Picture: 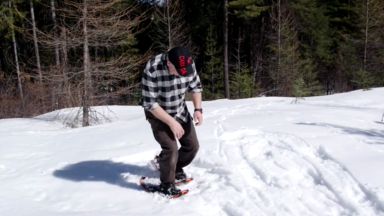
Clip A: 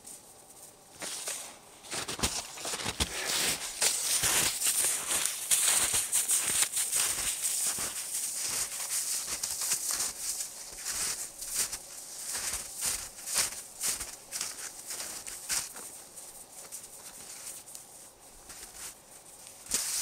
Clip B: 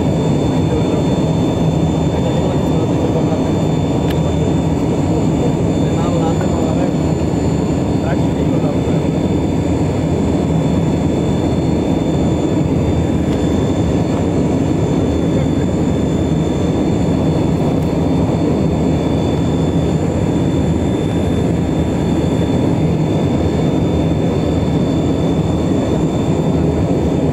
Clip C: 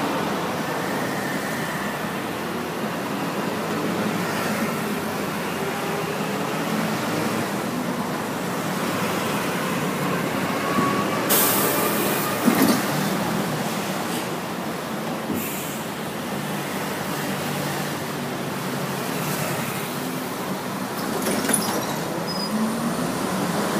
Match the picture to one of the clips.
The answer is A